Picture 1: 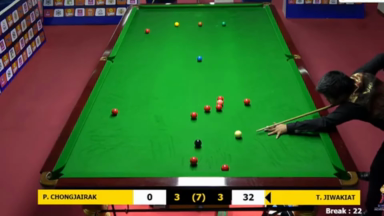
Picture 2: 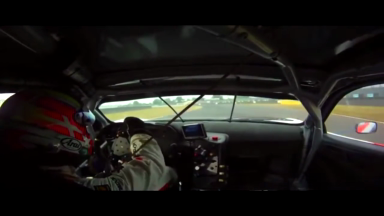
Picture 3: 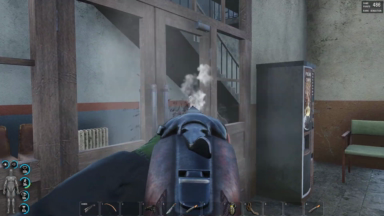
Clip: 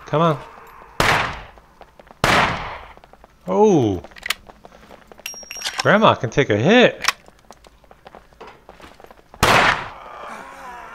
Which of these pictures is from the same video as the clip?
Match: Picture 3